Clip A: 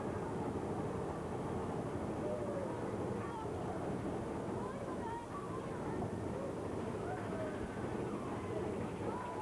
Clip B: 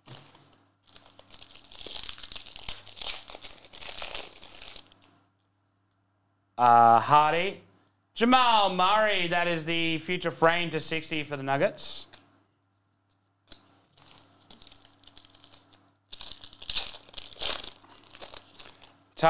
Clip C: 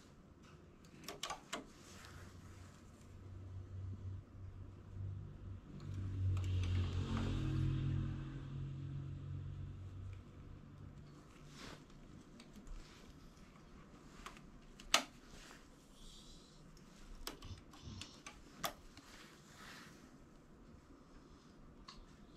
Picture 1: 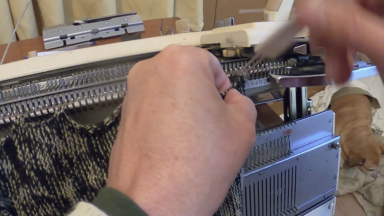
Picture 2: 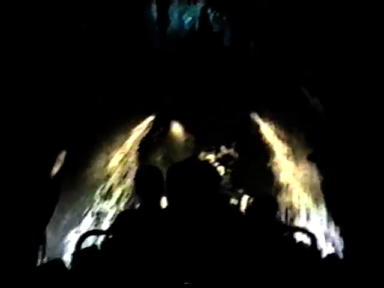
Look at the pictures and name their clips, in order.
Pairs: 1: C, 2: A